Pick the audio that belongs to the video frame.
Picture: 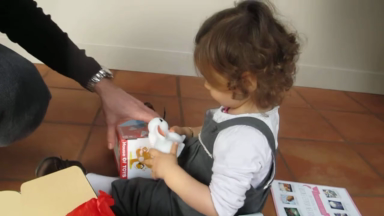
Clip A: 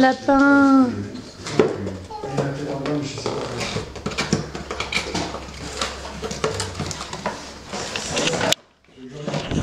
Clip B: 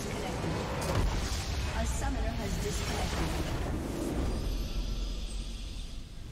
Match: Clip A